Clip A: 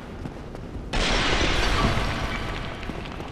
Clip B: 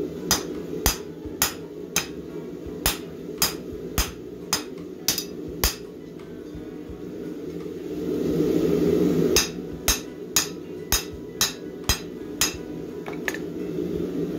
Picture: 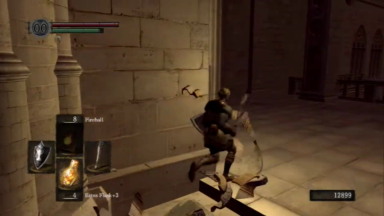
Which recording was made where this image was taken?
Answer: A